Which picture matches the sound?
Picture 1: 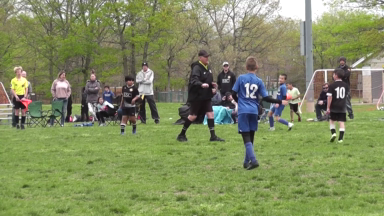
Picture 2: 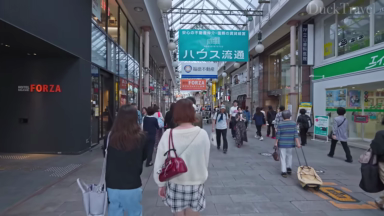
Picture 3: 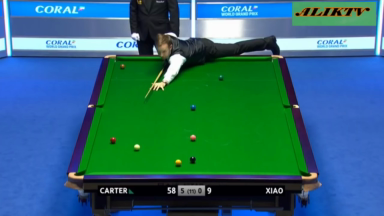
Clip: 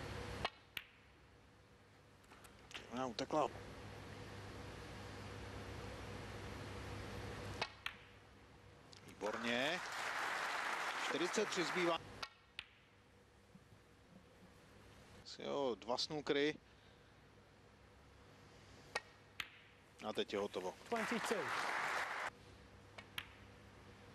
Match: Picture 3